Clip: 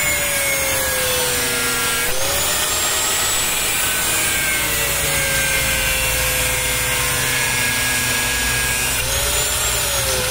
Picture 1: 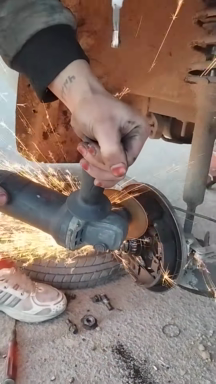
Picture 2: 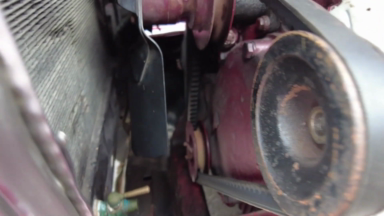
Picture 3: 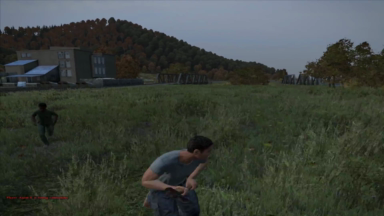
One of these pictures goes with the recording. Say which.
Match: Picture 1